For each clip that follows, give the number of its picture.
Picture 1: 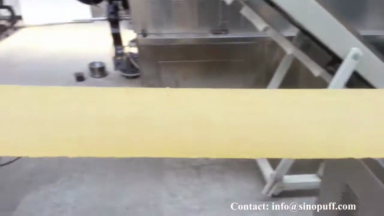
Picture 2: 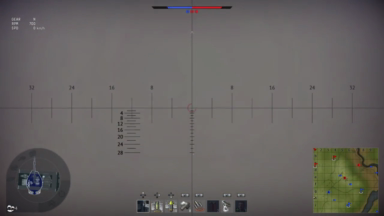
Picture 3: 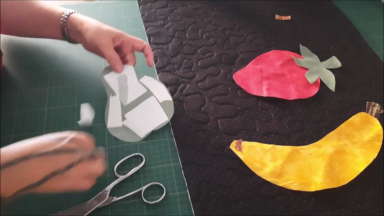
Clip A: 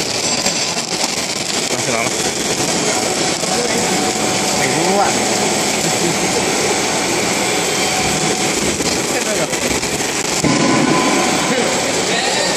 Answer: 1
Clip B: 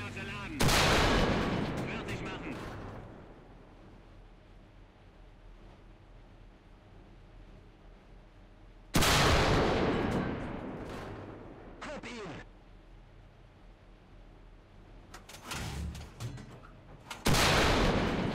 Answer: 2